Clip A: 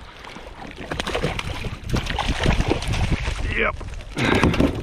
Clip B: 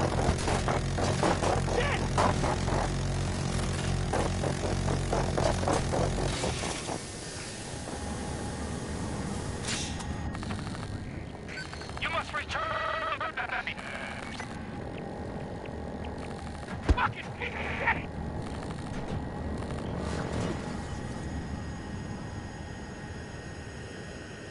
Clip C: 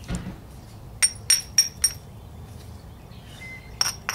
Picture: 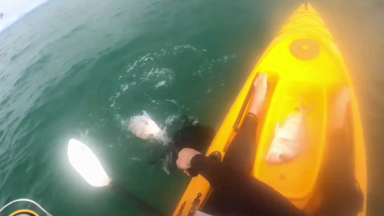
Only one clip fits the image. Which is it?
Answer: A